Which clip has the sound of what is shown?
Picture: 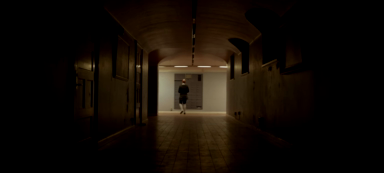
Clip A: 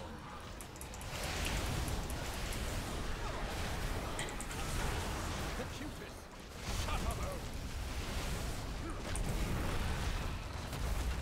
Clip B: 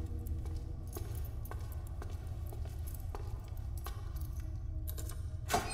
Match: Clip B